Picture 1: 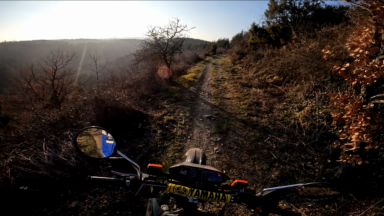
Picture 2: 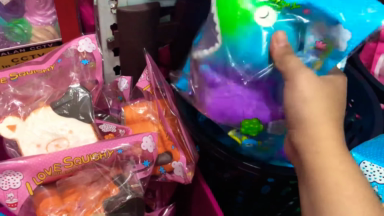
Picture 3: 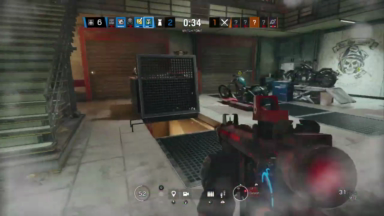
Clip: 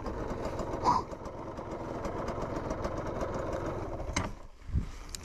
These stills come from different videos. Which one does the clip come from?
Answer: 1